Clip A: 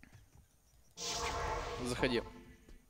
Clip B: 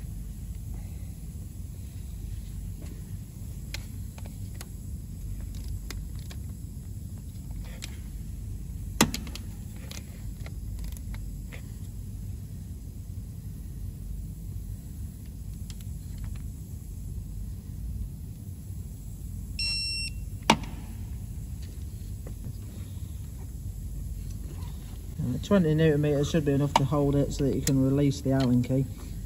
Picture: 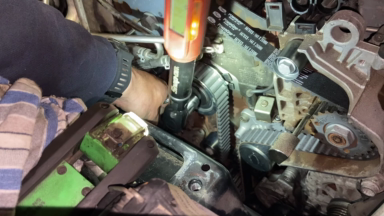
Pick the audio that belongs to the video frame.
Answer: B